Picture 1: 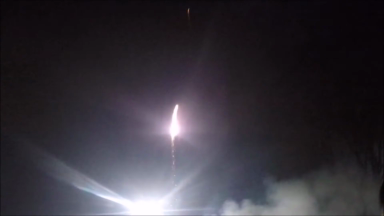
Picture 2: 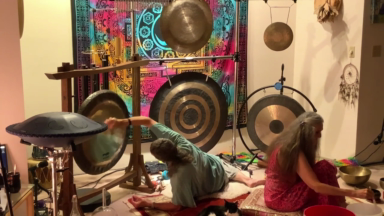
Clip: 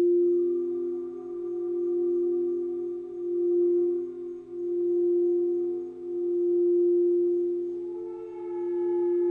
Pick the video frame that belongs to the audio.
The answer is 2